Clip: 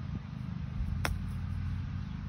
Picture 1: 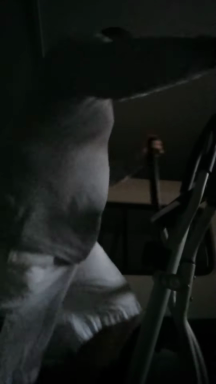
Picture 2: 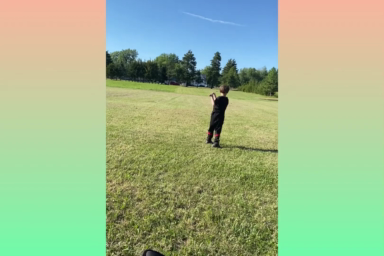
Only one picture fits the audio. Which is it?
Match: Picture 2